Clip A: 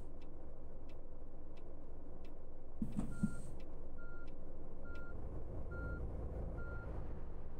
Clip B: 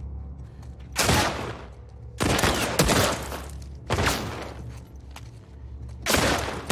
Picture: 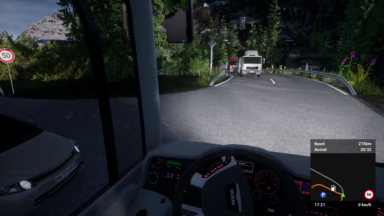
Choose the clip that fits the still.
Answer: A